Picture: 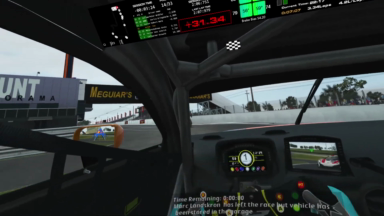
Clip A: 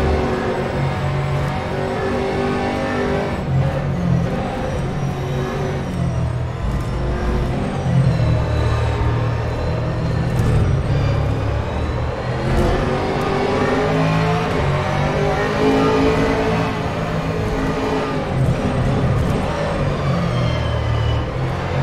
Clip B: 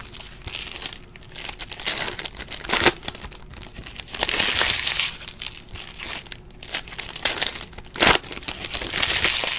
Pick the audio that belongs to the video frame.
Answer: A